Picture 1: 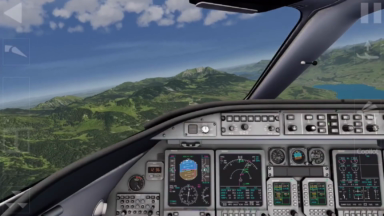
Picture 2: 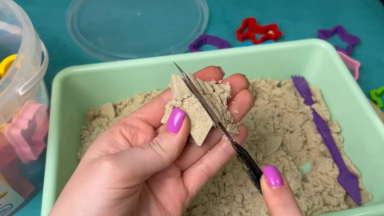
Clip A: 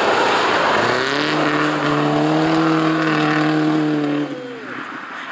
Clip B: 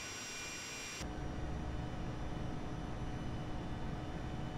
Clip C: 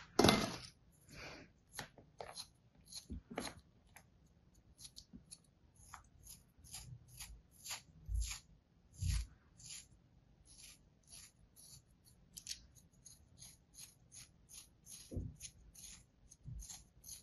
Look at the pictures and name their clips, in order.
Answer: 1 B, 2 C